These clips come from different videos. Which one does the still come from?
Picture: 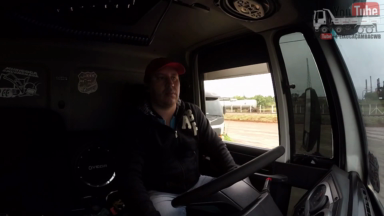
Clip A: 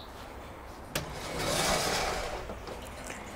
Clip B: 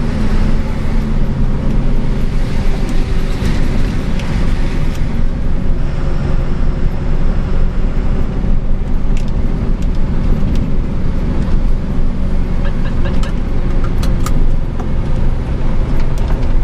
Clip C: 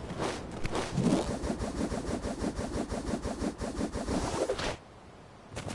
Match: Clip B